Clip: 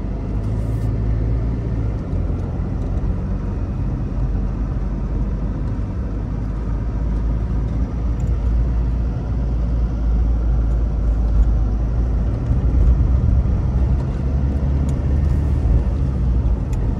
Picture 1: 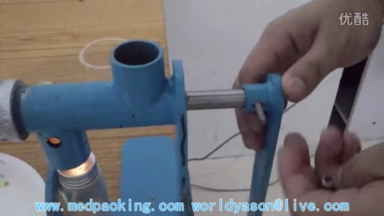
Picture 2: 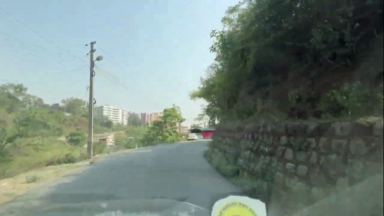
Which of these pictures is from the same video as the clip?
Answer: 2